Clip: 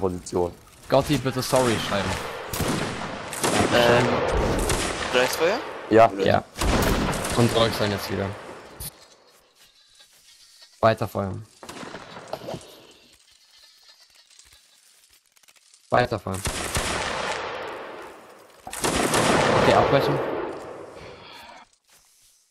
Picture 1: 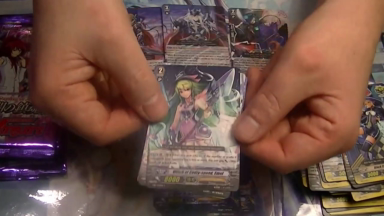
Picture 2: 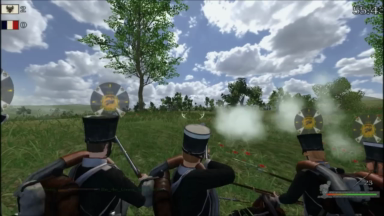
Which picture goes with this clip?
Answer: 2